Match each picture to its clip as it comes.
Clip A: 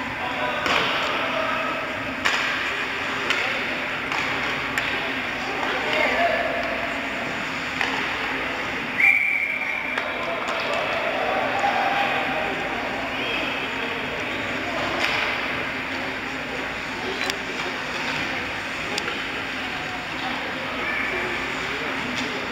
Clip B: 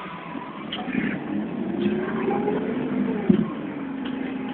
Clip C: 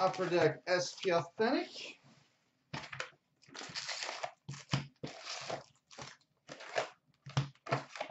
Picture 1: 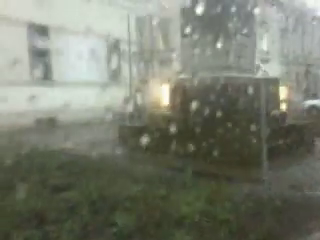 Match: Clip B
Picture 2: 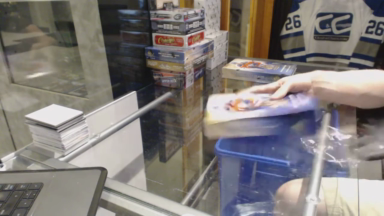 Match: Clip C